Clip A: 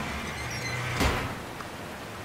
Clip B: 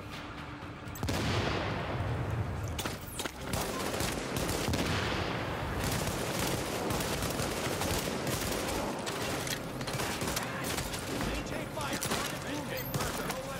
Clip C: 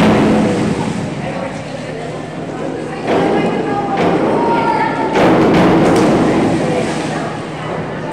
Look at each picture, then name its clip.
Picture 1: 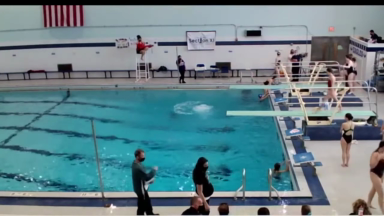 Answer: C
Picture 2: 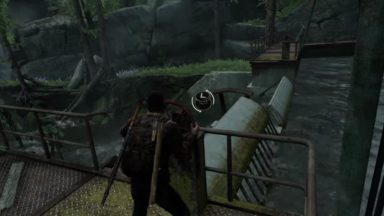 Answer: A